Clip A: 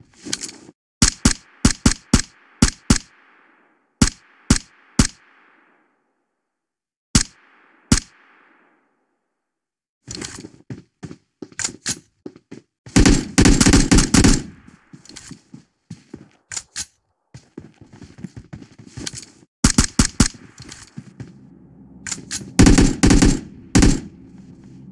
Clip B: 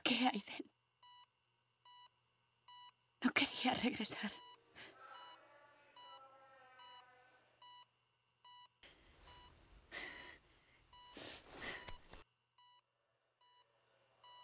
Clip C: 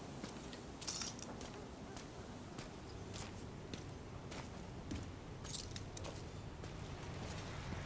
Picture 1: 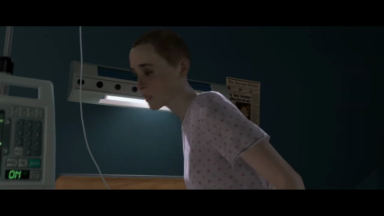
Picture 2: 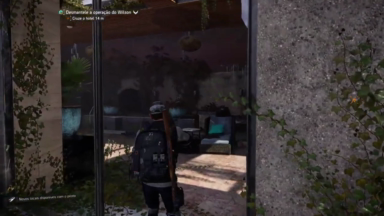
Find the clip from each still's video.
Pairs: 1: B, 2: C